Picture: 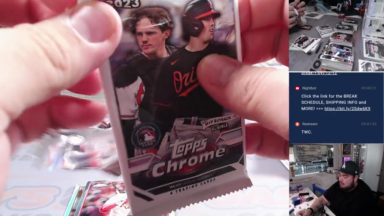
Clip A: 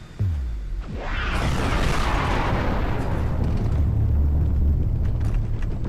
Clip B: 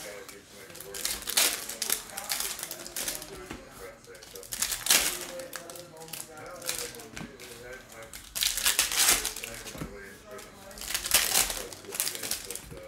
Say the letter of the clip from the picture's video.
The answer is B